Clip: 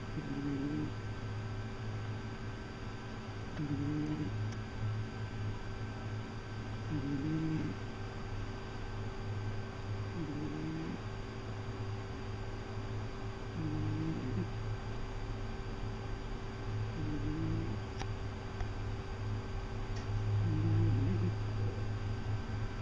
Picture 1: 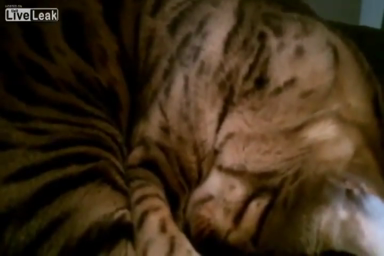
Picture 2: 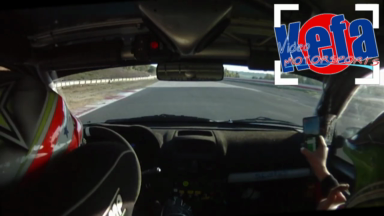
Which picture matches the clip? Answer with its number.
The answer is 1